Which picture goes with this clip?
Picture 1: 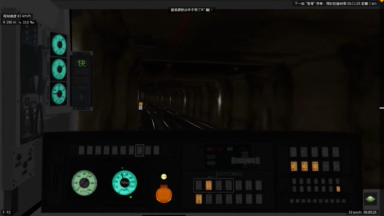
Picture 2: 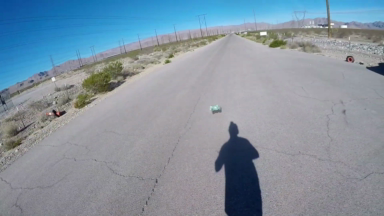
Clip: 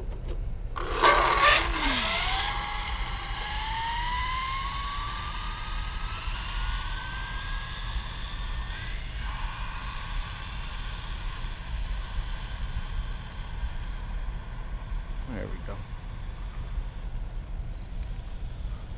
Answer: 2